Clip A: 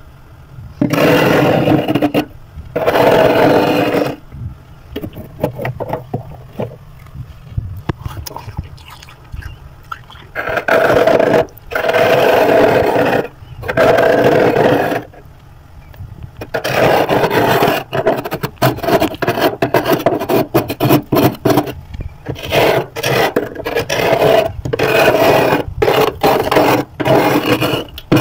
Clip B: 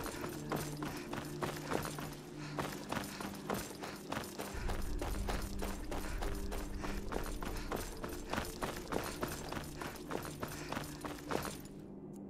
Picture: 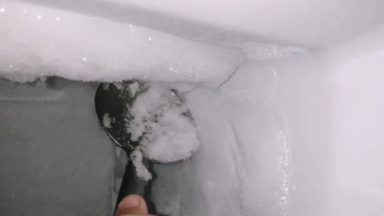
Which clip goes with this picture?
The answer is A